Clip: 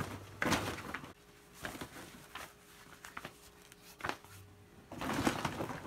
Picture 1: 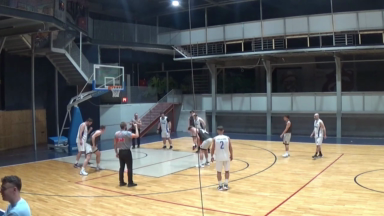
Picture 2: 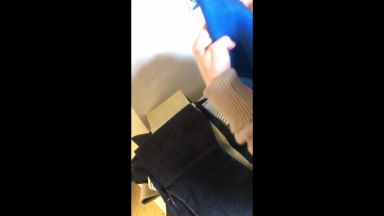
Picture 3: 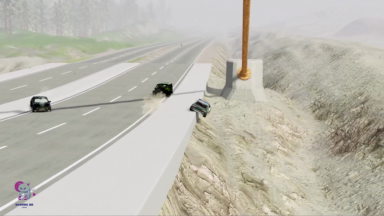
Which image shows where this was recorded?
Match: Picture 2